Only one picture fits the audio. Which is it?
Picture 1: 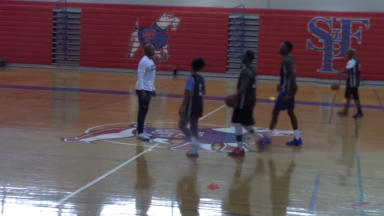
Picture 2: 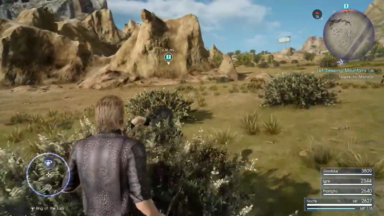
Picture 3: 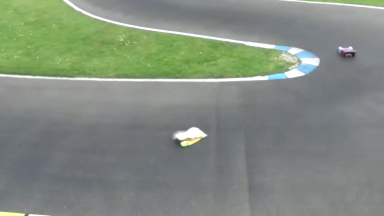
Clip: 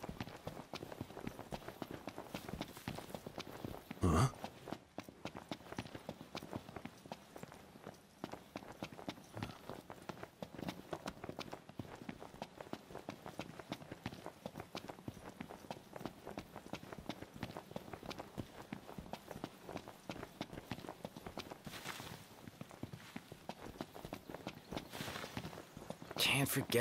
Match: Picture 2